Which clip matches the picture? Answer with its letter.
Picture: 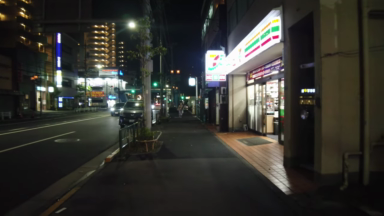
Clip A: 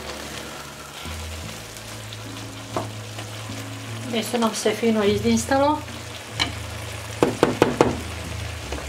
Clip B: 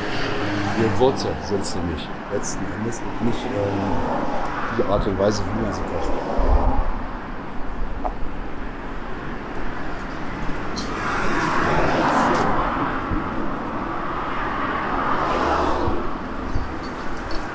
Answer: B